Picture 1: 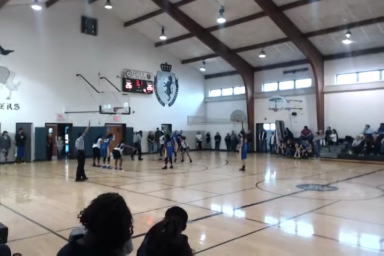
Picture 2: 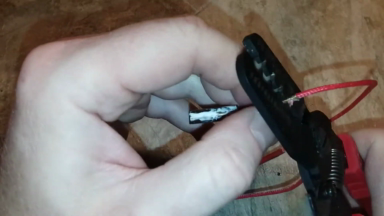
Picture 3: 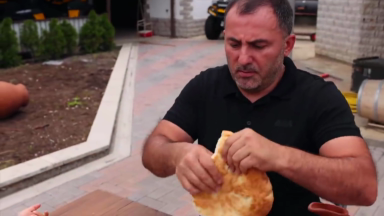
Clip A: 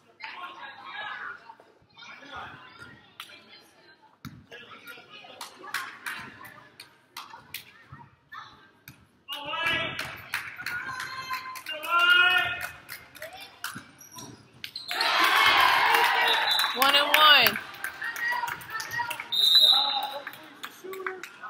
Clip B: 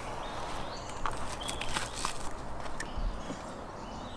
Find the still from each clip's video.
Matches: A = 1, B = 3